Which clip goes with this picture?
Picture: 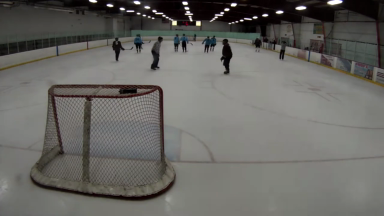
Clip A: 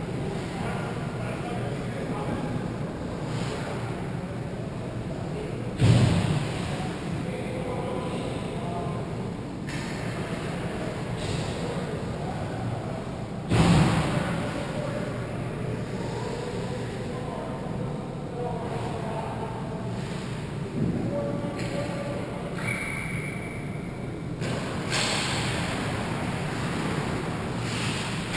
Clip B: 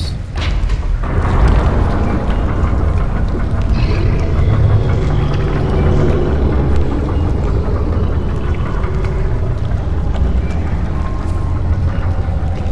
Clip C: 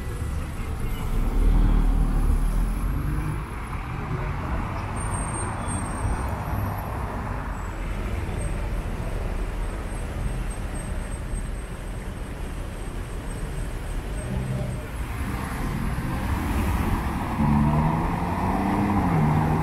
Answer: A